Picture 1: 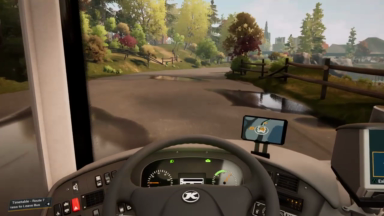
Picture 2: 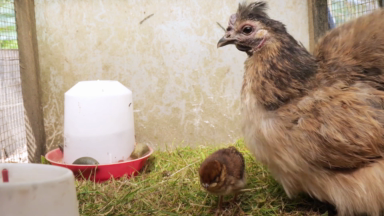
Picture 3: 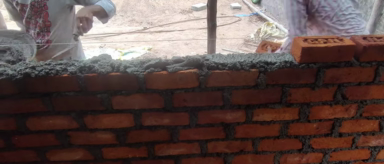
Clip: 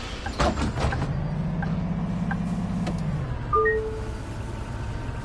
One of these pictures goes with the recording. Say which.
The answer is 1